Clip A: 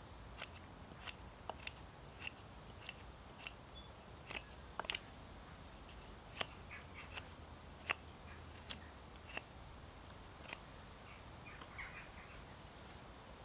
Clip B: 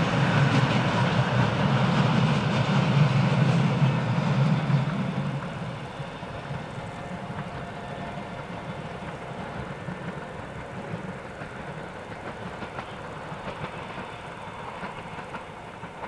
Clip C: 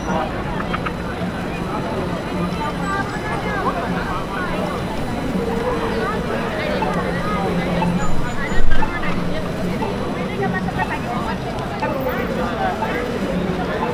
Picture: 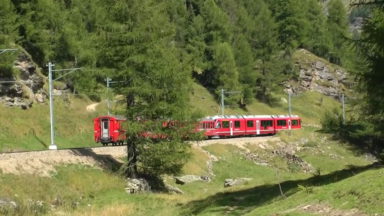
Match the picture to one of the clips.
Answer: B